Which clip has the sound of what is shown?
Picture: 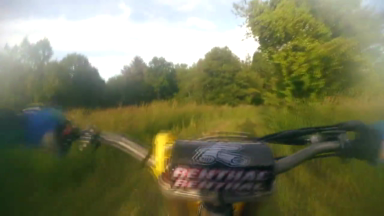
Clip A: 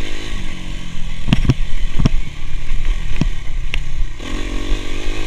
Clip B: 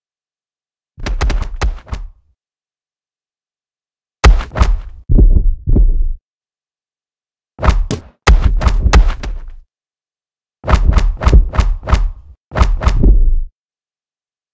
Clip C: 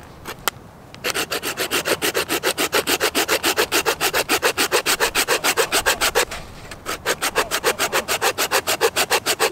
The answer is A